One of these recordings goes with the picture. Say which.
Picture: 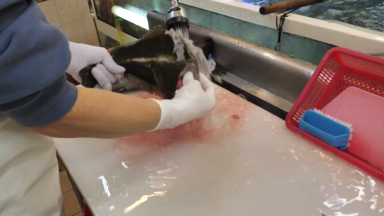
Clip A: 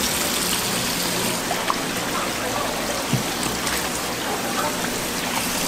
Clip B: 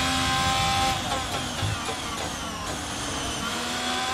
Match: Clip A